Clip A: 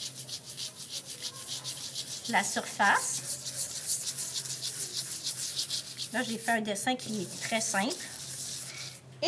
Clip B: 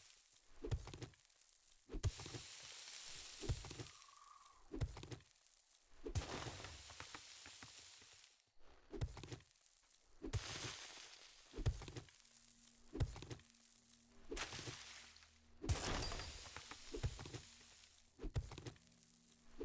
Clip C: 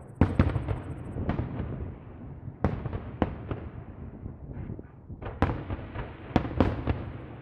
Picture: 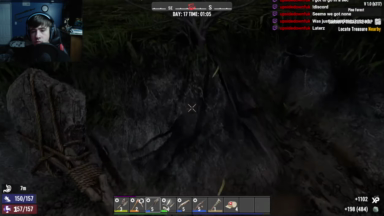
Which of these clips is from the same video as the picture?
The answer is B